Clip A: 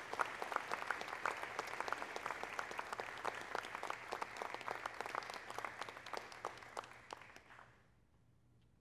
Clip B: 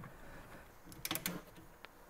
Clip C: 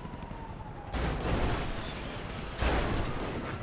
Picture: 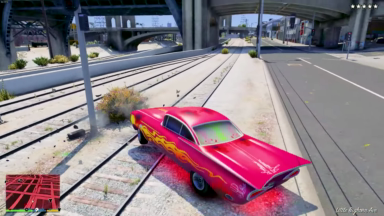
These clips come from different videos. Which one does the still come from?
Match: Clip C